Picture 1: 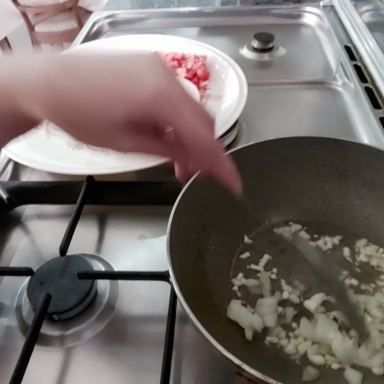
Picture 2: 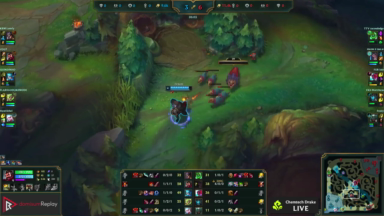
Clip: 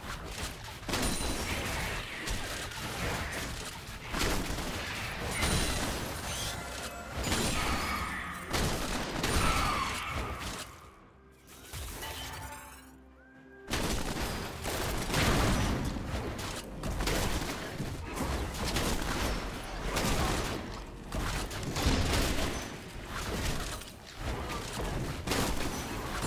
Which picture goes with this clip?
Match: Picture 2